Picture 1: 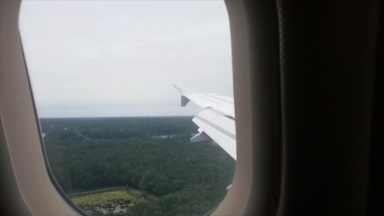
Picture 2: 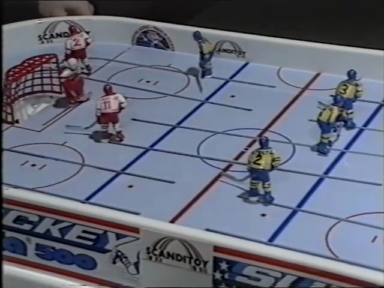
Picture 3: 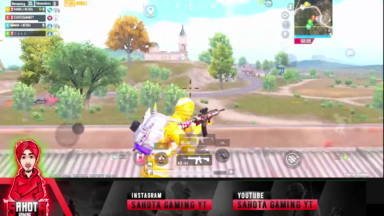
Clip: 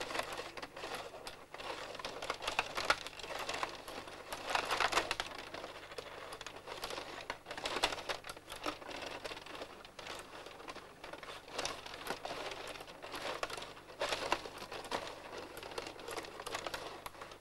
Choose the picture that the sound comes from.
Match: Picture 2